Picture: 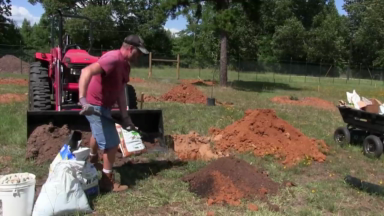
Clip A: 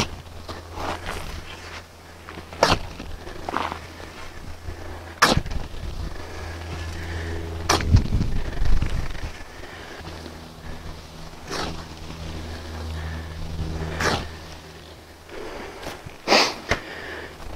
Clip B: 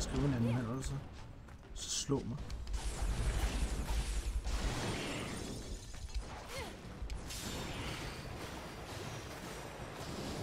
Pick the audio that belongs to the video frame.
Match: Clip A